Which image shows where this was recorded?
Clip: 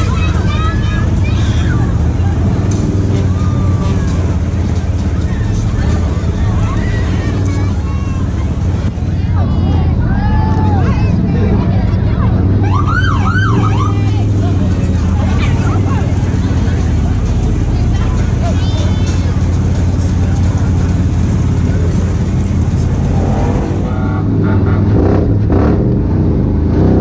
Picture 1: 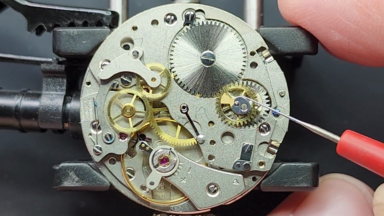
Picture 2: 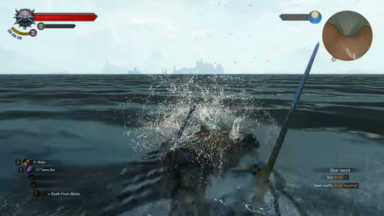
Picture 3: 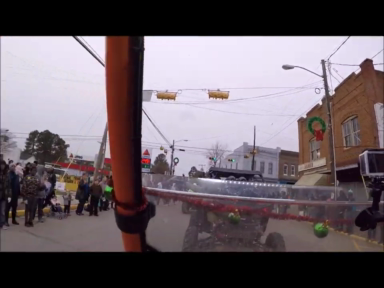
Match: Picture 3